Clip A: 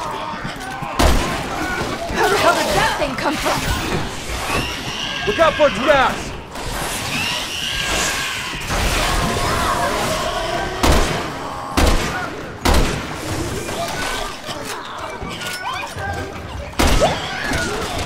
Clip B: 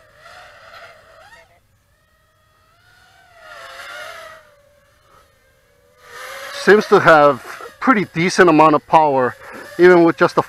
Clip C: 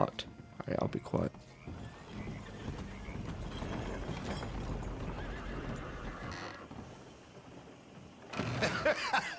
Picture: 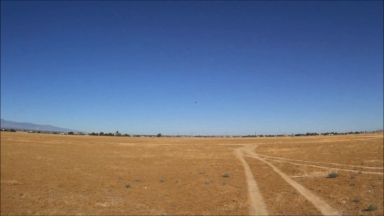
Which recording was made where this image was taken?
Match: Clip B